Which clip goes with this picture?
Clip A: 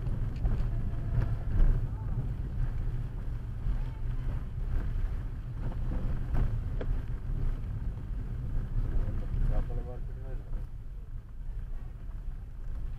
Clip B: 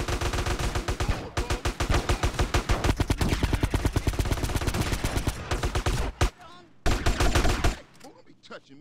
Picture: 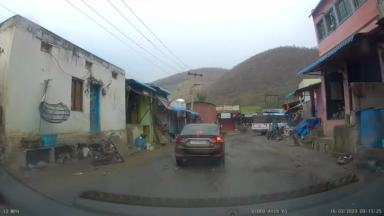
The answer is A